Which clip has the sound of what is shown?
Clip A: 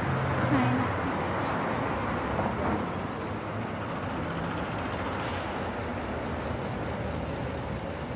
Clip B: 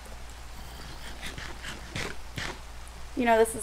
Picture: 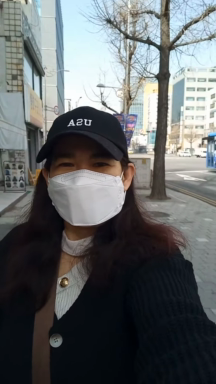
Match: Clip A